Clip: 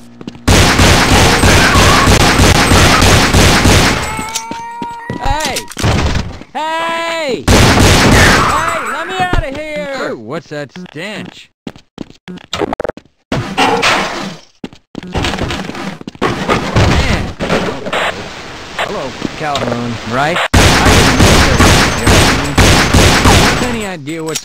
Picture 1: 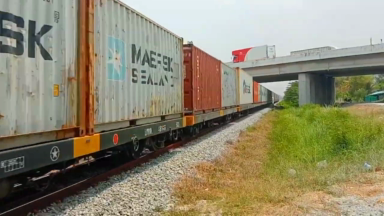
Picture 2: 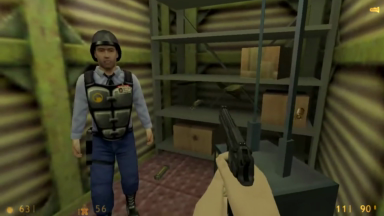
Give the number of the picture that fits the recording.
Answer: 2